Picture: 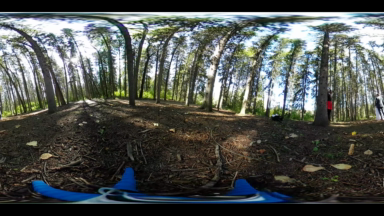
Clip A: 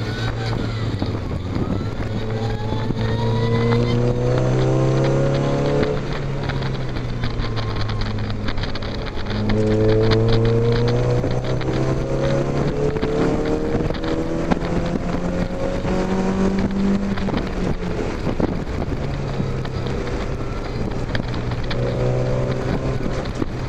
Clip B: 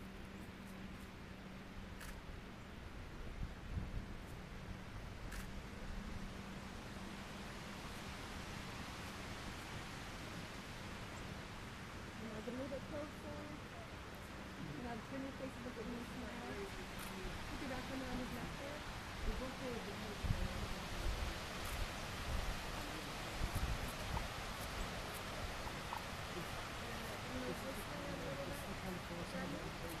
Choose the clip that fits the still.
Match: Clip B